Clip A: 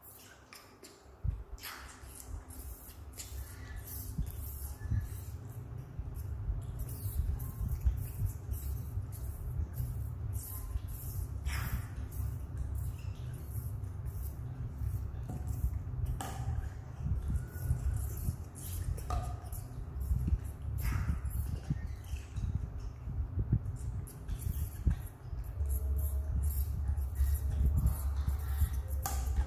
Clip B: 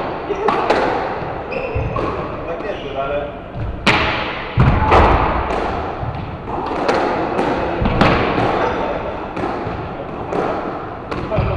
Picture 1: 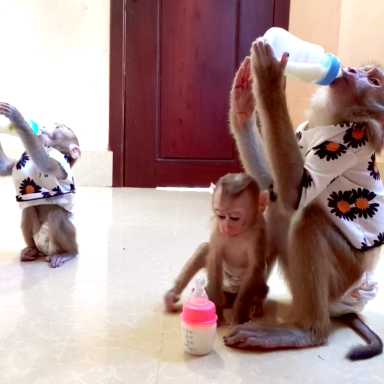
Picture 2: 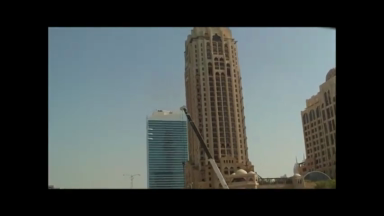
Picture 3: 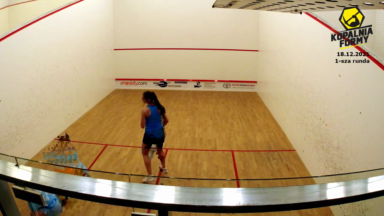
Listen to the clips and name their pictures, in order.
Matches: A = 1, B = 3